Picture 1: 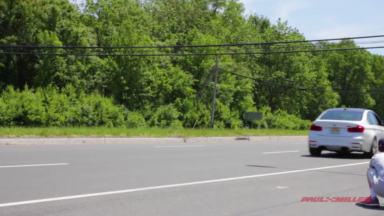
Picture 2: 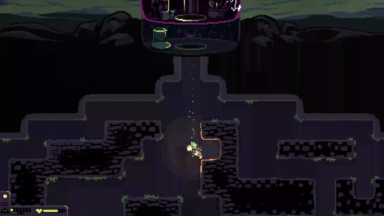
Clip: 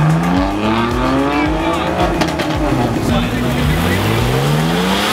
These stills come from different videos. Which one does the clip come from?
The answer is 1